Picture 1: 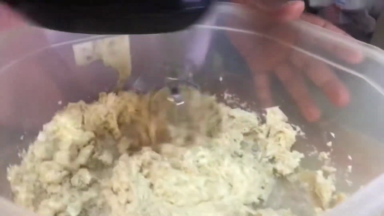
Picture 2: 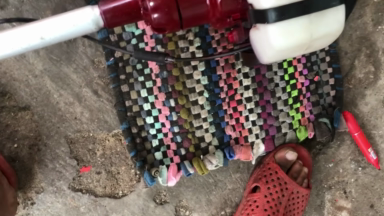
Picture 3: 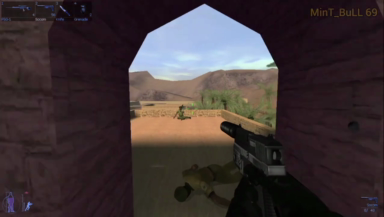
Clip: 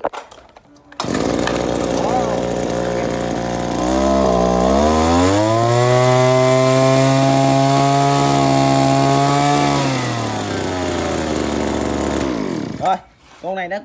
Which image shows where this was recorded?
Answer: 2